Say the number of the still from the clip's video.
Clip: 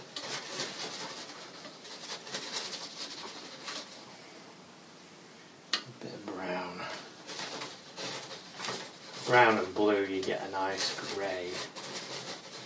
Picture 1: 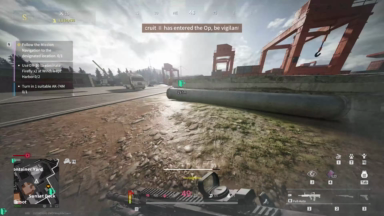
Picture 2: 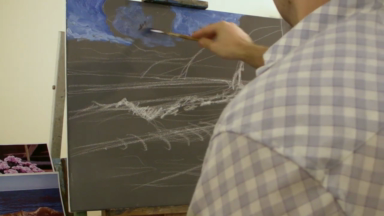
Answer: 2